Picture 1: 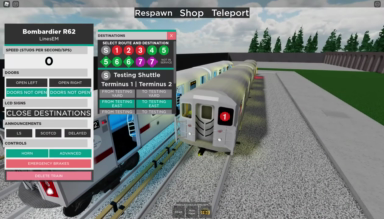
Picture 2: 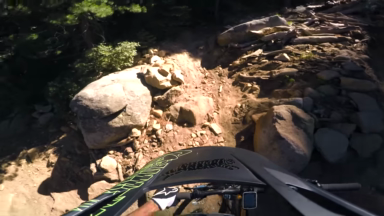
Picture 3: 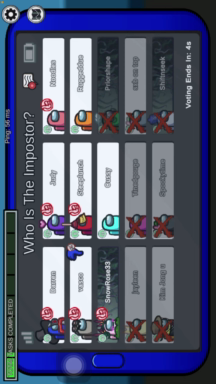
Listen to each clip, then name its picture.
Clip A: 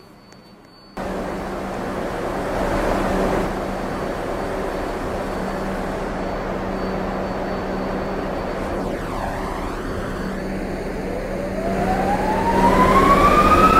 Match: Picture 1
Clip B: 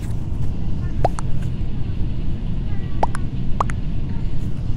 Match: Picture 3